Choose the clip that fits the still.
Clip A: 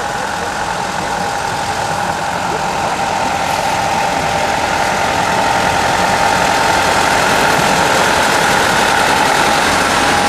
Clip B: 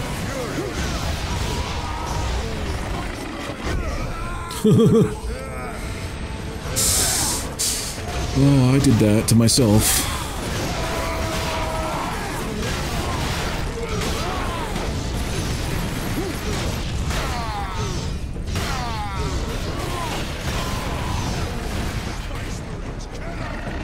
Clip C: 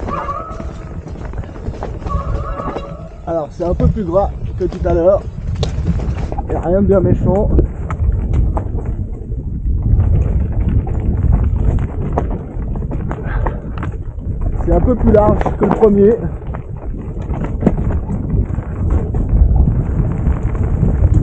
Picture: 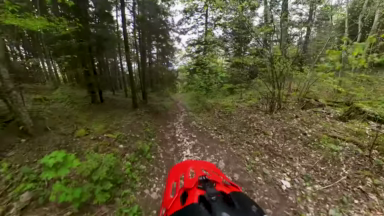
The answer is C